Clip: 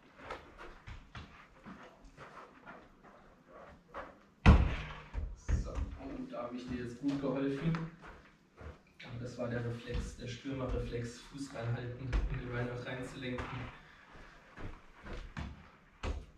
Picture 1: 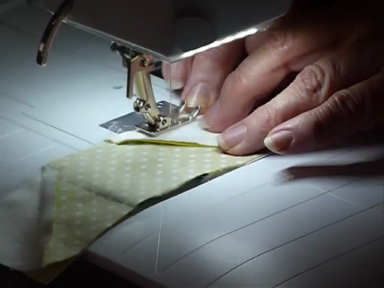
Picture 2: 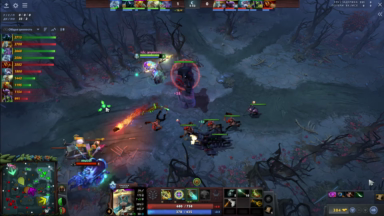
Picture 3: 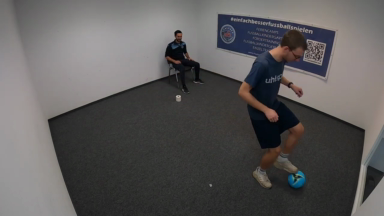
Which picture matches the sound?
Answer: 3